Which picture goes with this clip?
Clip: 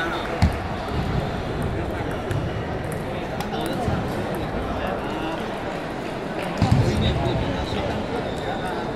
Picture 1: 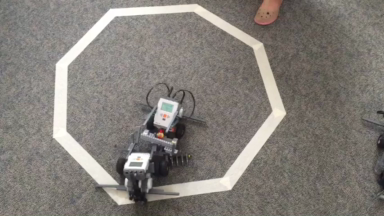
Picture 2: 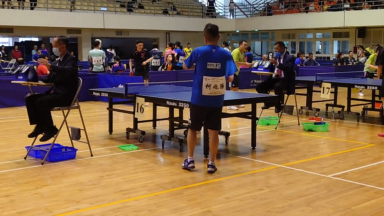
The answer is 2